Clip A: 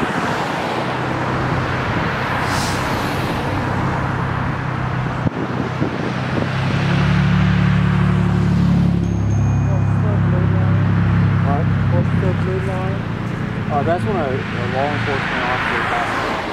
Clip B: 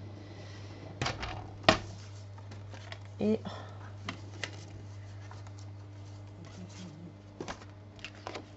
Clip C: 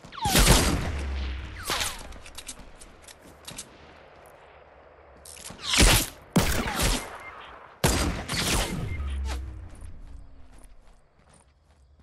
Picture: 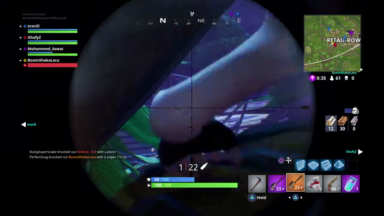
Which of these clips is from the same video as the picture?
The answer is C